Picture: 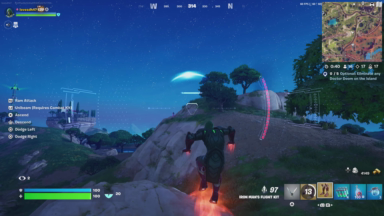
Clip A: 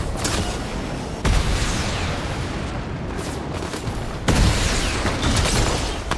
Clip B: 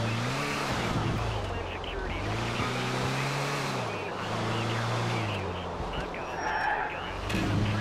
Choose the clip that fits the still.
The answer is A